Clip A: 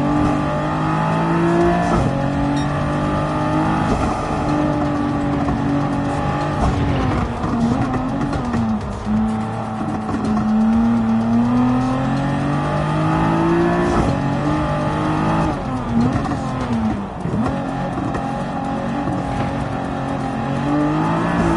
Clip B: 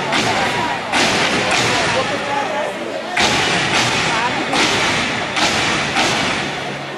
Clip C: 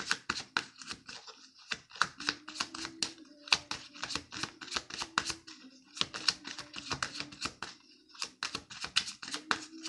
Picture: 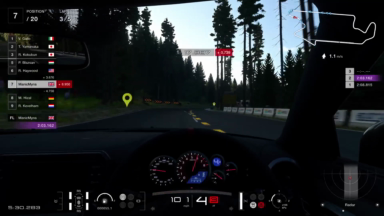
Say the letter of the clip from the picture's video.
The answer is A